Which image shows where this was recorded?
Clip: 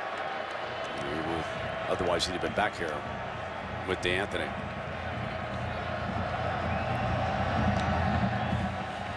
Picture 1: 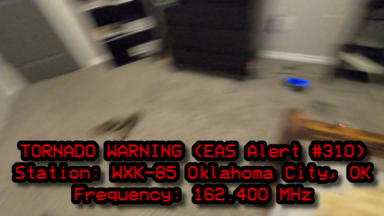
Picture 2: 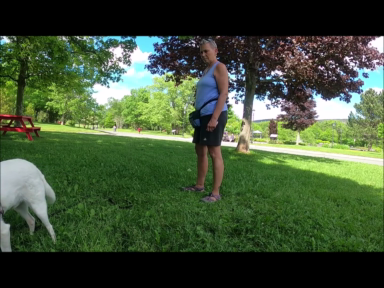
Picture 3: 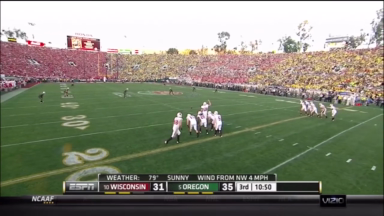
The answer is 3